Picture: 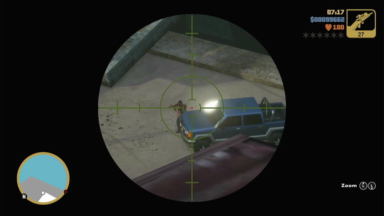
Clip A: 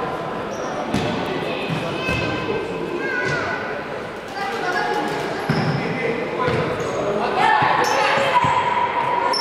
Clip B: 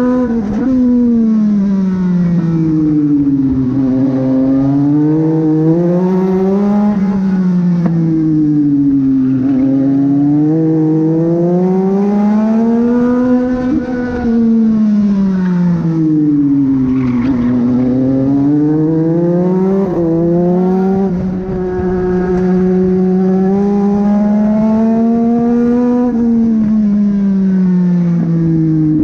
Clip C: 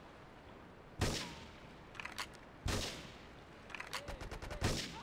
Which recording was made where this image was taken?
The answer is C